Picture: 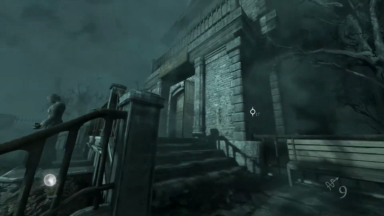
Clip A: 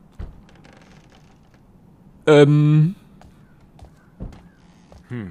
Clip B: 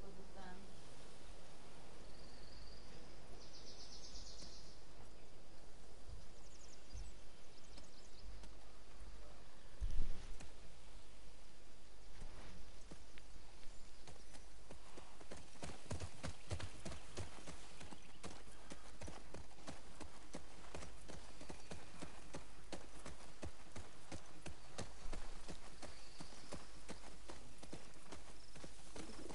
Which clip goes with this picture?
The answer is A